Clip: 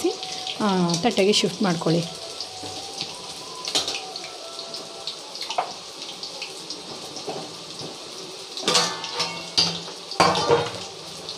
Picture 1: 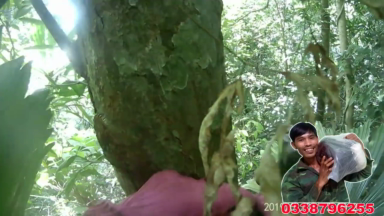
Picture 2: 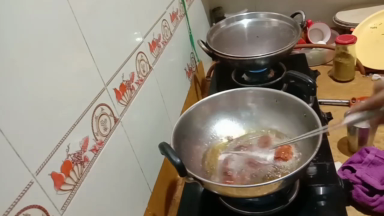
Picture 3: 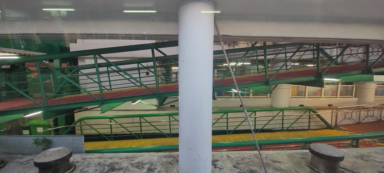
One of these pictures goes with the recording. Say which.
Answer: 2